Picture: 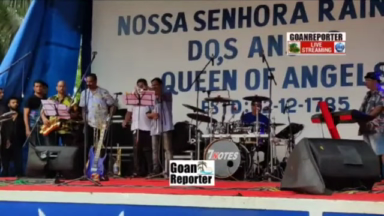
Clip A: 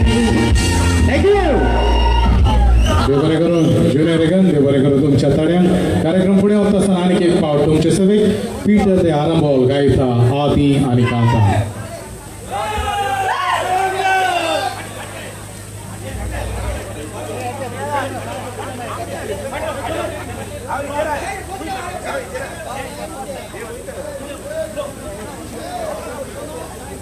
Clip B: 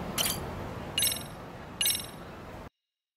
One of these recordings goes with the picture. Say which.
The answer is A